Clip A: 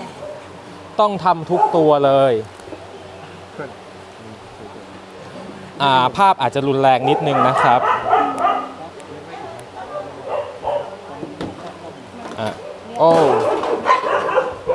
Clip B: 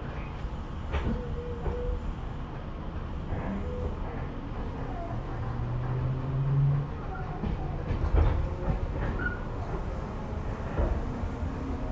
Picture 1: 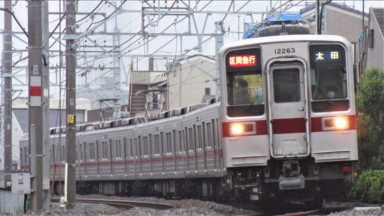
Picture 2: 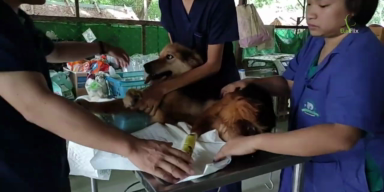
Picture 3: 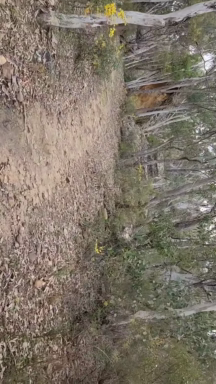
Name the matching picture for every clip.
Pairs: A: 2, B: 1